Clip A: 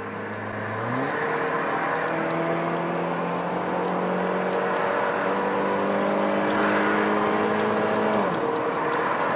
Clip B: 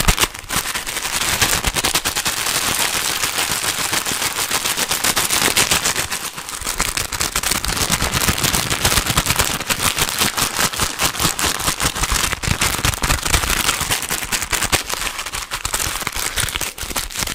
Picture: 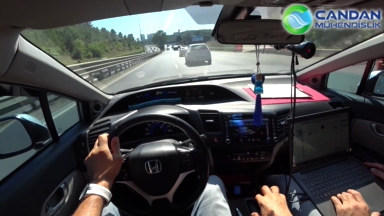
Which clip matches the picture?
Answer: A